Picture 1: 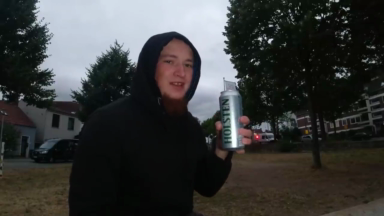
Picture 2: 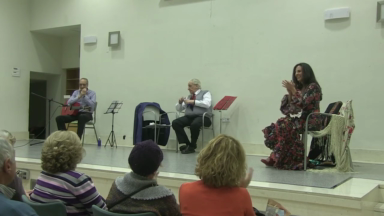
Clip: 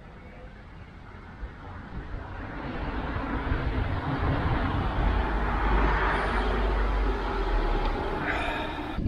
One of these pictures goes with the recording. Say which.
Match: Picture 1